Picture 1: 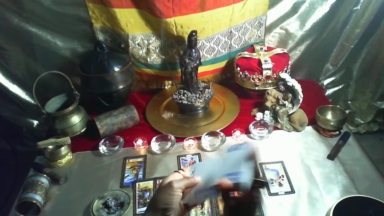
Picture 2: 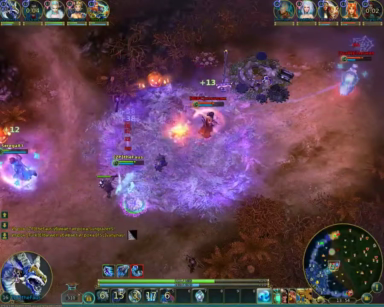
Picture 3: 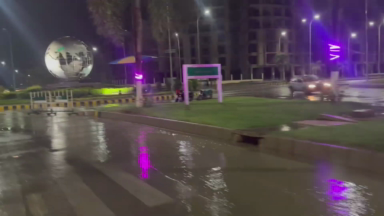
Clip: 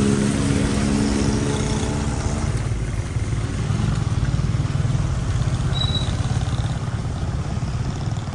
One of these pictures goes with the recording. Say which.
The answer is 3